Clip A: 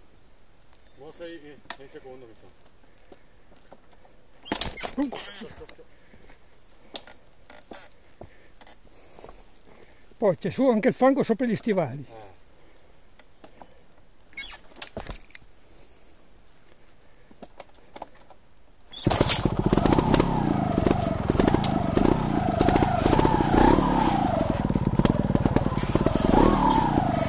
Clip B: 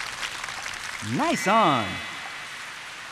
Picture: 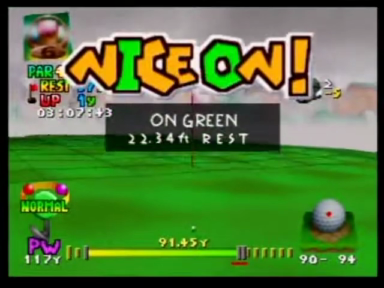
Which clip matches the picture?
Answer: B